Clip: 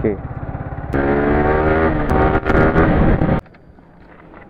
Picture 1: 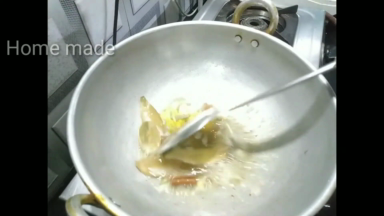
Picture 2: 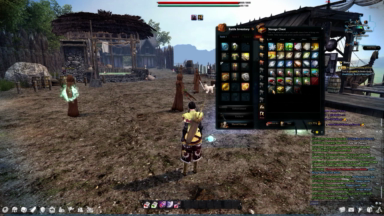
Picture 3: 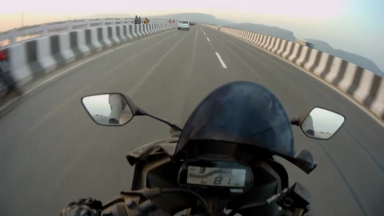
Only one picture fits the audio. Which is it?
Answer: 3